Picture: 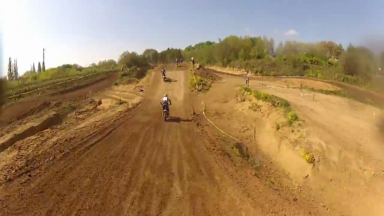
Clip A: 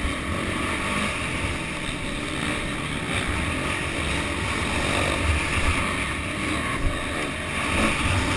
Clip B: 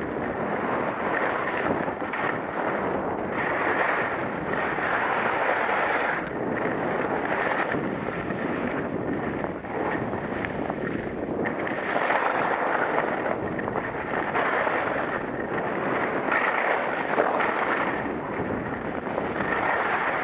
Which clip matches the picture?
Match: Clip A